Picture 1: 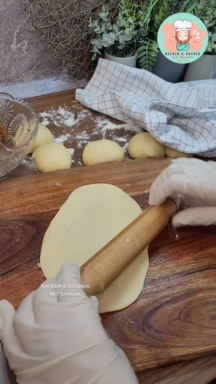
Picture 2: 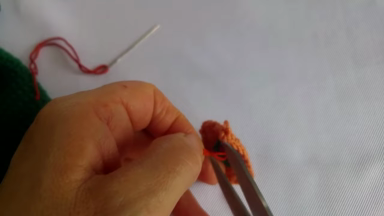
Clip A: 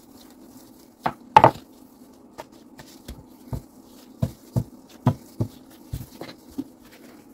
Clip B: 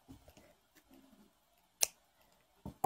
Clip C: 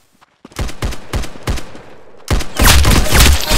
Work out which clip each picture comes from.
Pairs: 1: A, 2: B